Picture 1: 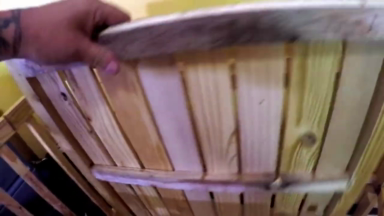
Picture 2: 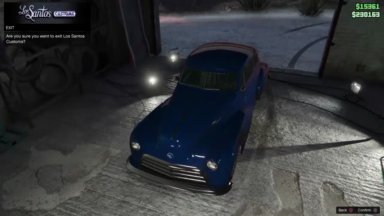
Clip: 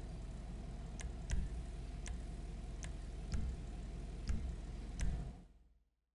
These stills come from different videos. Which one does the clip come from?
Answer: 2